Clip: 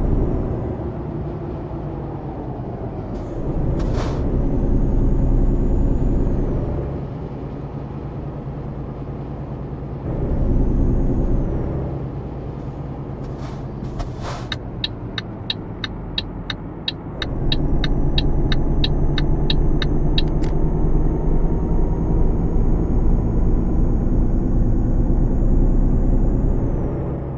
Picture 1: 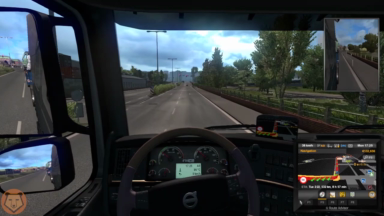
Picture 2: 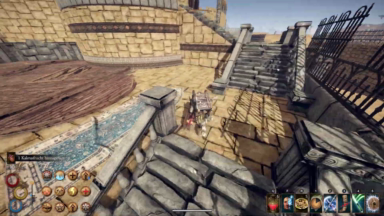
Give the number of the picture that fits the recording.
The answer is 1